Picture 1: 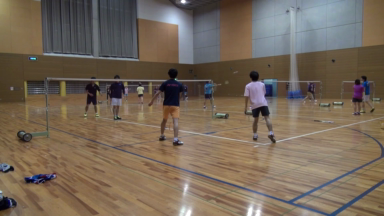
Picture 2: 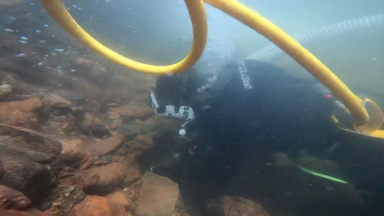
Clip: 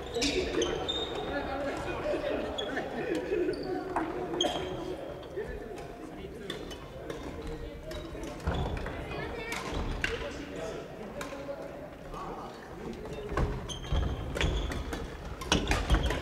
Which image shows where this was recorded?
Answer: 1